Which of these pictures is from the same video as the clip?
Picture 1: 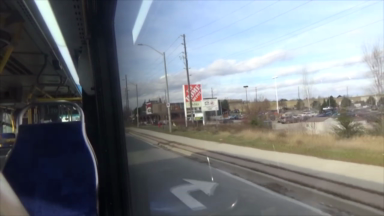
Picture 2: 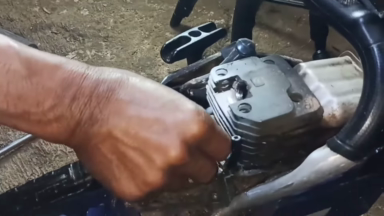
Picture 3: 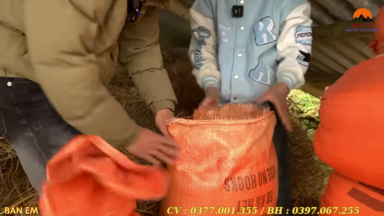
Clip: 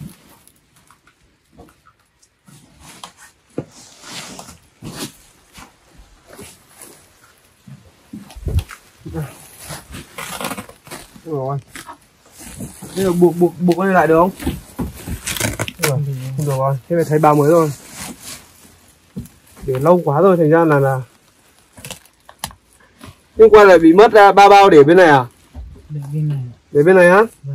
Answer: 3